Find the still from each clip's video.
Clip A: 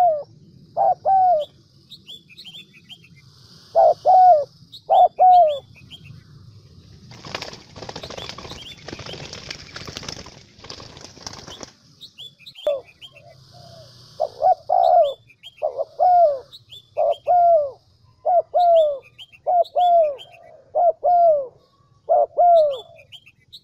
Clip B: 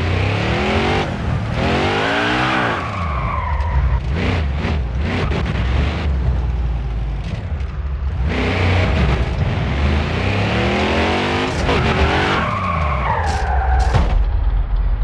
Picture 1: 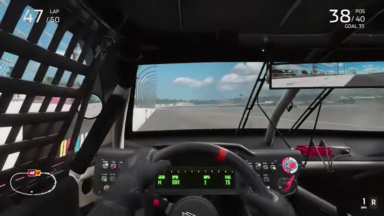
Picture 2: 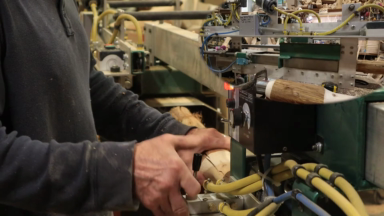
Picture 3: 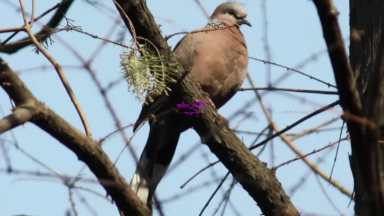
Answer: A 3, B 1